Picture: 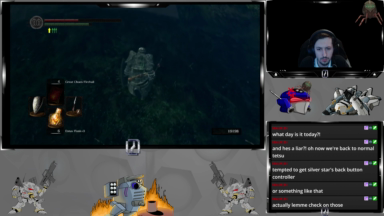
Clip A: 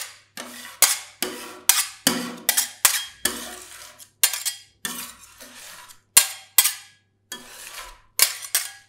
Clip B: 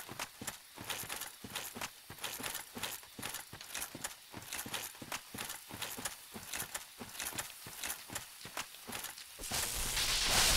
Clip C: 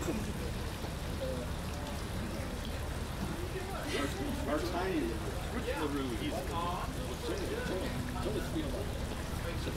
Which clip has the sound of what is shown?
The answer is B